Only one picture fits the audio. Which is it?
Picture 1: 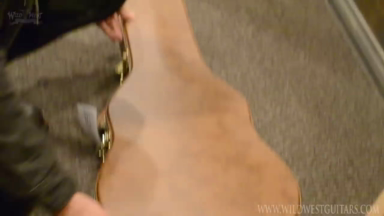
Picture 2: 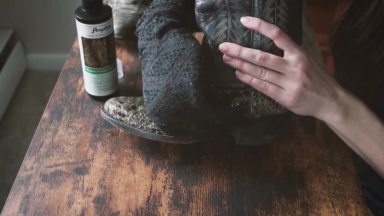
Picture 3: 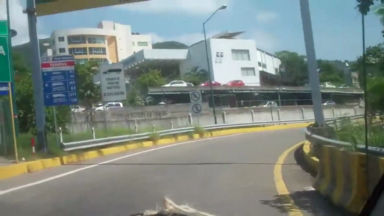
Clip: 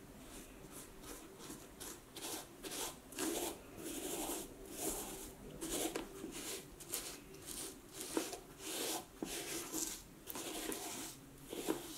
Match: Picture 2